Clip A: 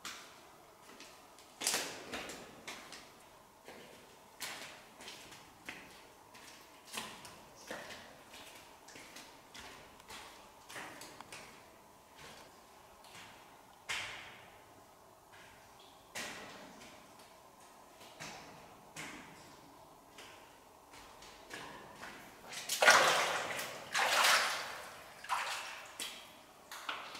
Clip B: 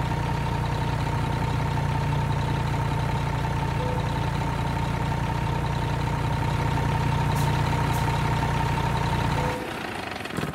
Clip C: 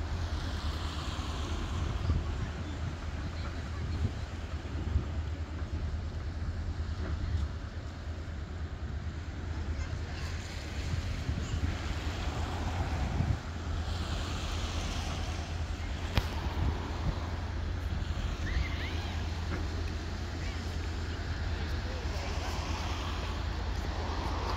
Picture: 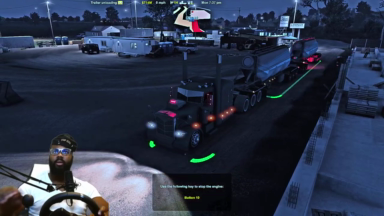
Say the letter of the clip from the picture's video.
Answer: B